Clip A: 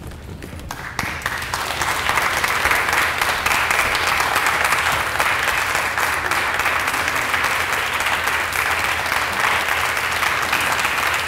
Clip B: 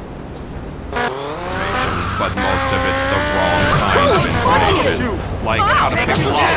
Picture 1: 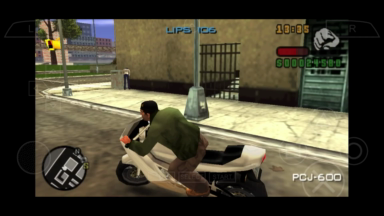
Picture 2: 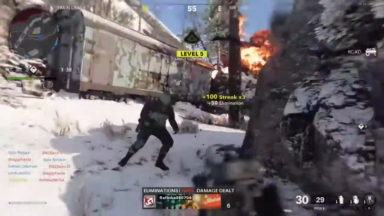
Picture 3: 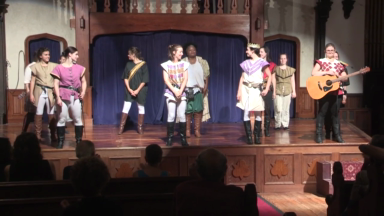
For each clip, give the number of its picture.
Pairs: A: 3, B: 1